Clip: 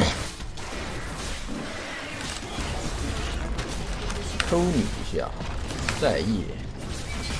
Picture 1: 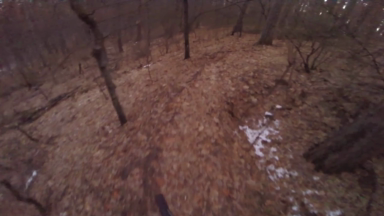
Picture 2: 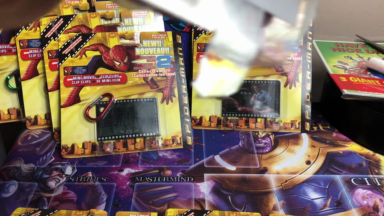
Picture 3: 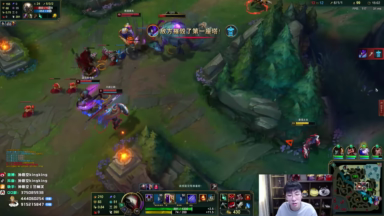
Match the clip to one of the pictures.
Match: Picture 3